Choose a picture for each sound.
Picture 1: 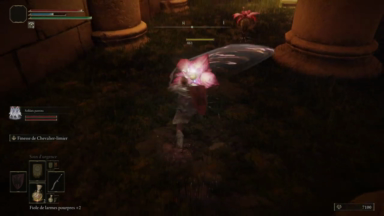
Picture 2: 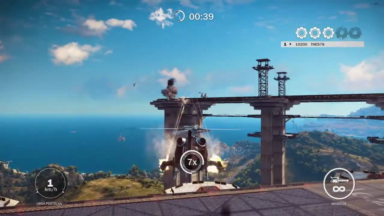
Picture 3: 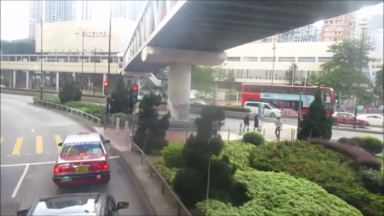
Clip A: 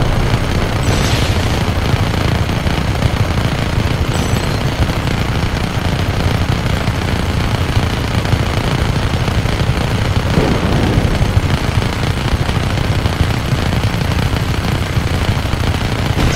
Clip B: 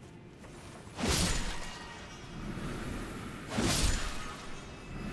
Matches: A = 2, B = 1